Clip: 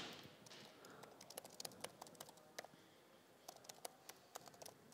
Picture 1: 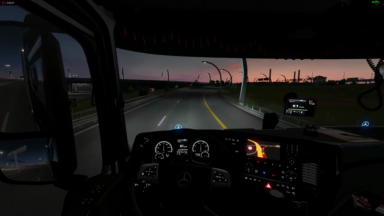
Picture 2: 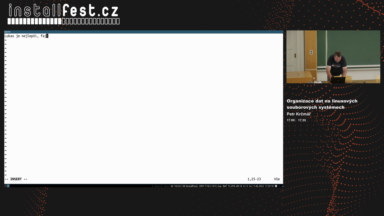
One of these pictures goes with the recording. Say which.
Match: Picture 2